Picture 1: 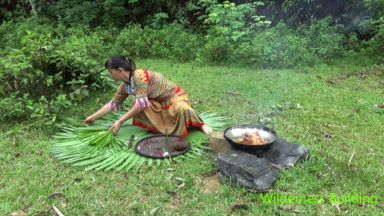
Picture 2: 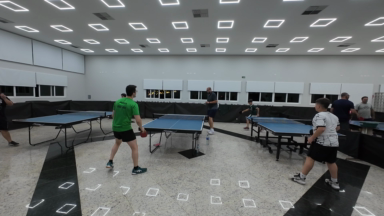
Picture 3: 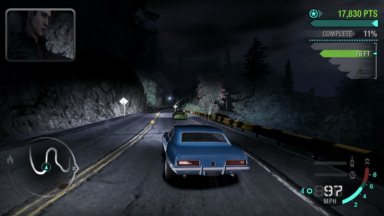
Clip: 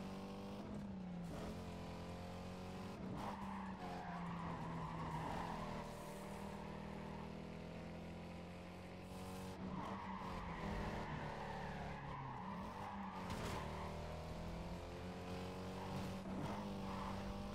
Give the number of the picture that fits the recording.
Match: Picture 3